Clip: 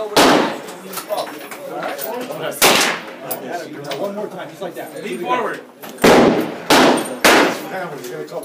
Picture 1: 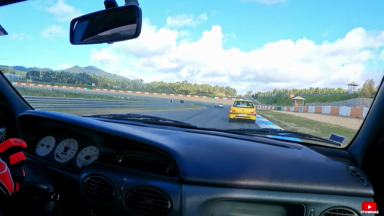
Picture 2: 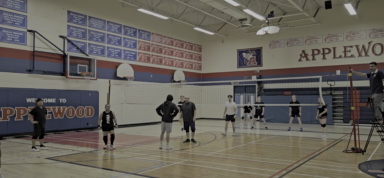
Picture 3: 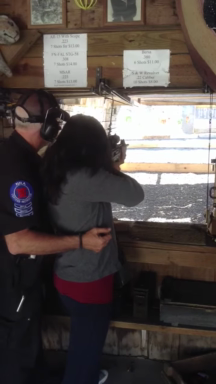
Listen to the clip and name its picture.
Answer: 3